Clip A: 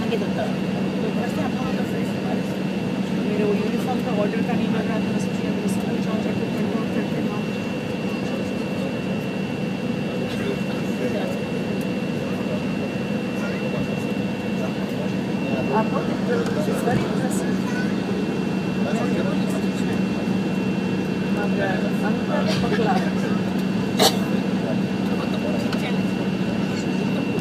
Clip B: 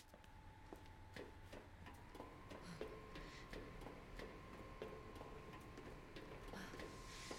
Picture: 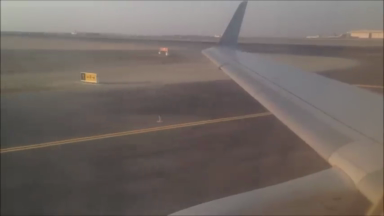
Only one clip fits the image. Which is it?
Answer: A